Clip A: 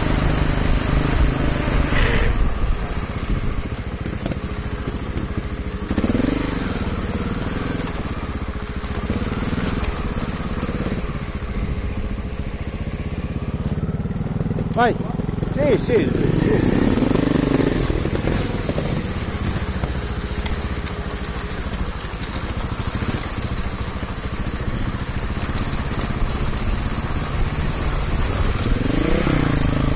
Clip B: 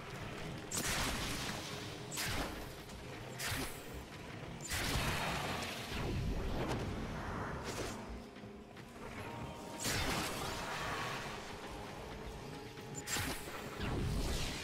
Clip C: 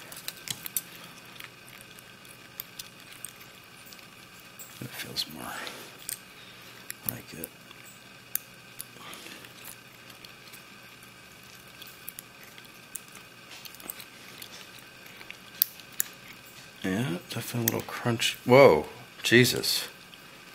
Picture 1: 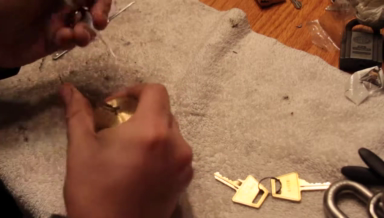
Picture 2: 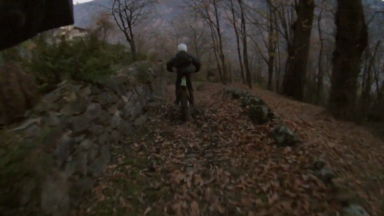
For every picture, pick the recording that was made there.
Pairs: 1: C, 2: A